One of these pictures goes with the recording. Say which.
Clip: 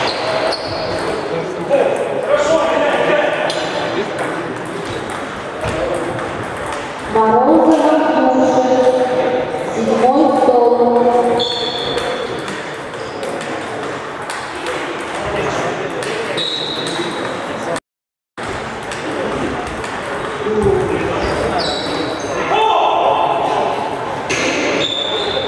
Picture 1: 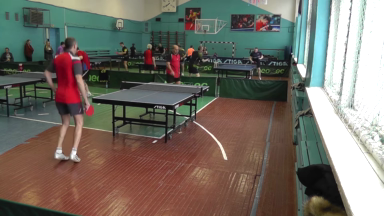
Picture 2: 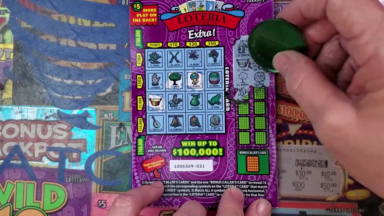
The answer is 1